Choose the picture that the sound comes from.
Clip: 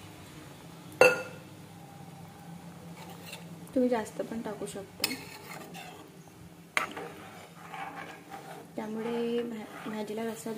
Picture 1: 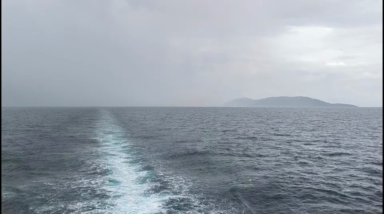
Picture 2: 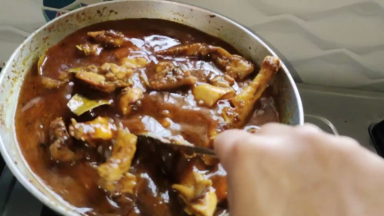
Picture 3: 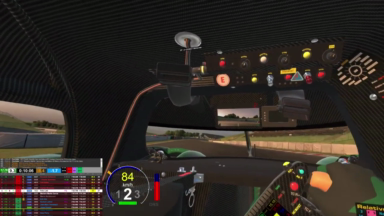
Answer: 2